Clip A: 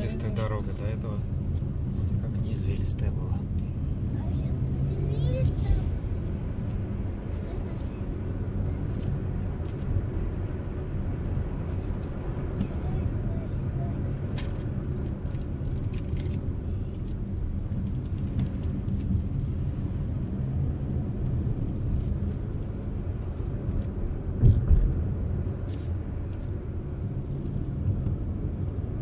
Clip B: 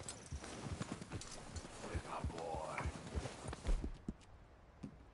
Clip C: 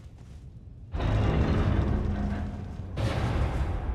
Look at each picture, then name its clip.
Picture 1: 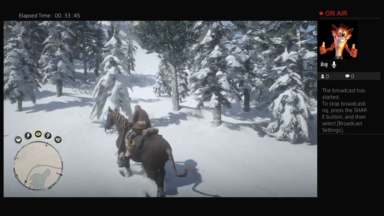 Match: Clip B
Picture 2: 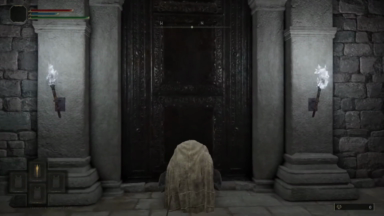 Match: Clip C